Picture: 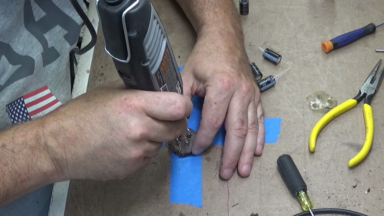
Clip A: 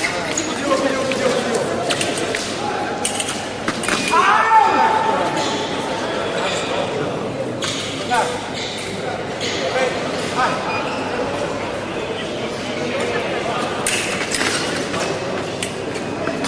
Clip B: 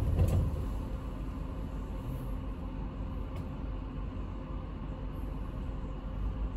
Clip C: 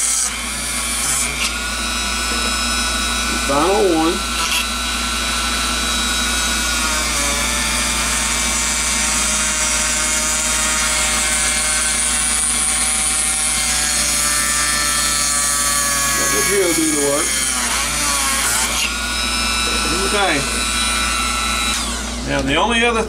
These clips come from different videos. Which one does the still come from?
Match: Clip C